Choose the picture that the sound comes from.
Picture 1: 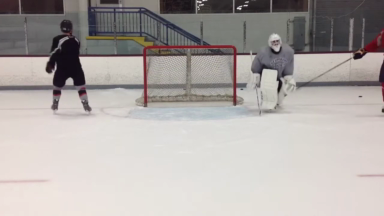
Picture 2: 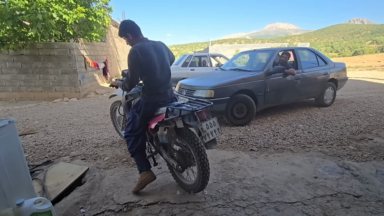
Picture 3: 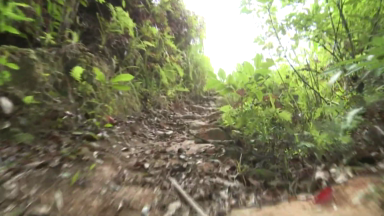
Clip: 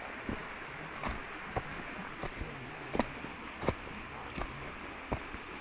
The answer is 3